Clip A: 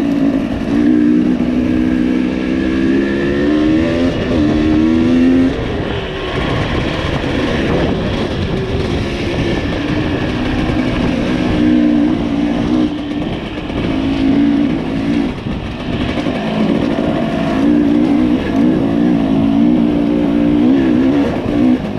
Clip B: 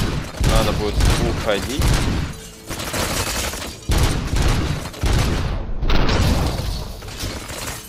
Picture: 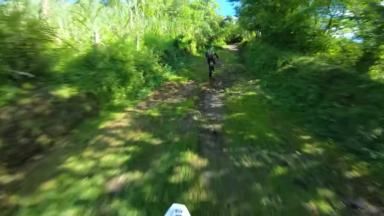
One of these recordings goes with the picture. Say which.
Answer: A